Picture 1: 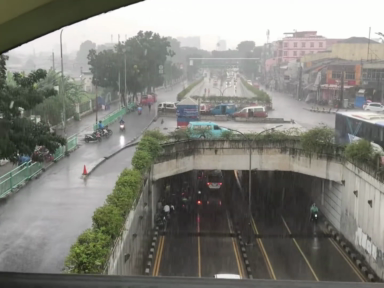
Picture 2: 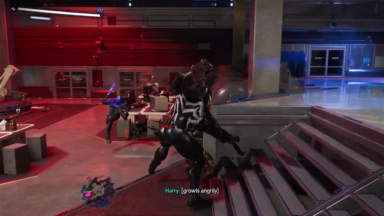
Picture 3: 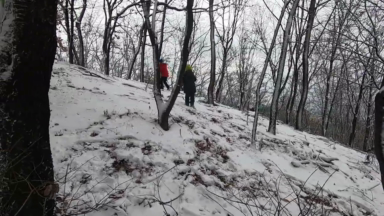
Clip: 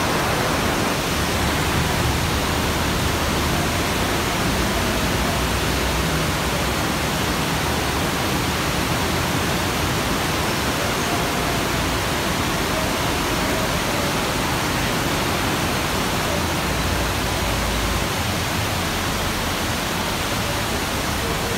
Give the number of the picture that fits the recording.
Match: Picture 1